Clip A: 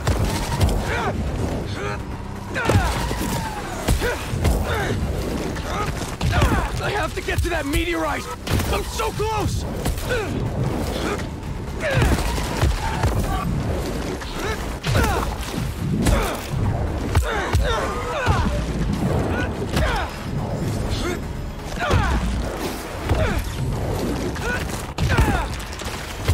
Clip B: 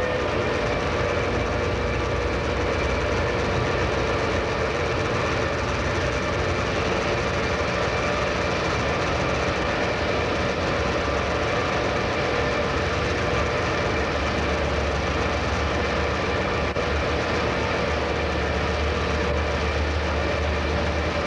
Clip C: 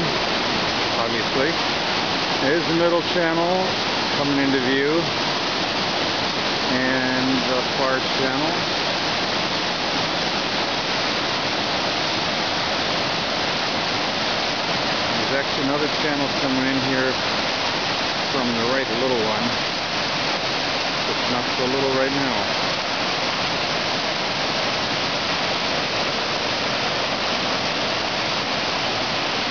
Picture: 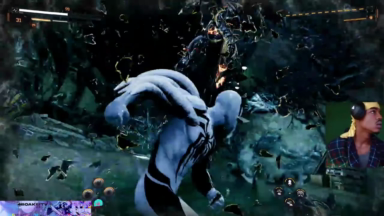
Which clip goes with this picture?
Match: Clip A